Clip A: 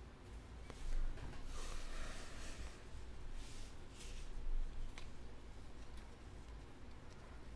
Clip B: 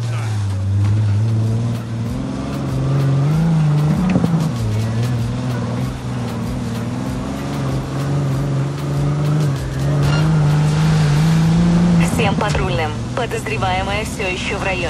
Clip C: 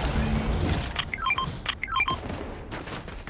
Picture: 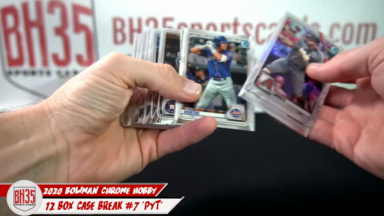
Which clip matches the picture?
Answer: A